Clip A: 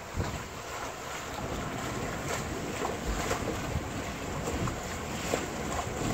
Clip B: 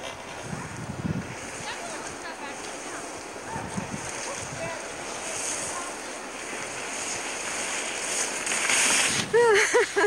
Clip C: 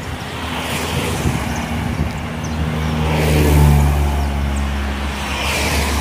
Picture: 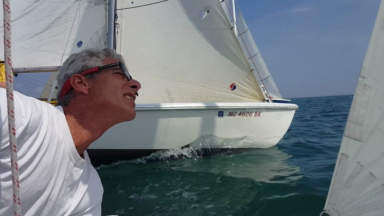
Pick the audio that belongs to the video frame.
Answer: A